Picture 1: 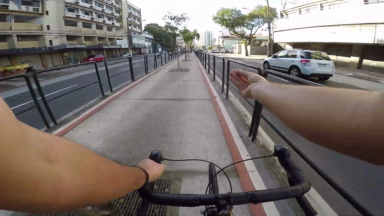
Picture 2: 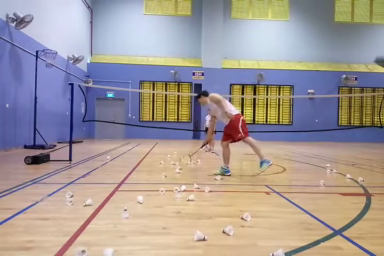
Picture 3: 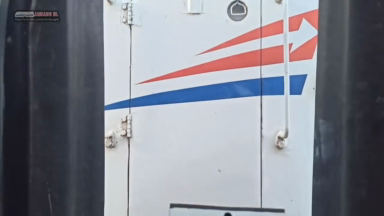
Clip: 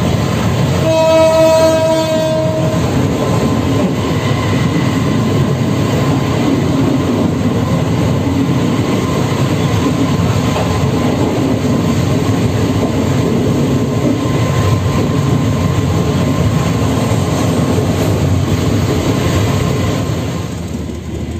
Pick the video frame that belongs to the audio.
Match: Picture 3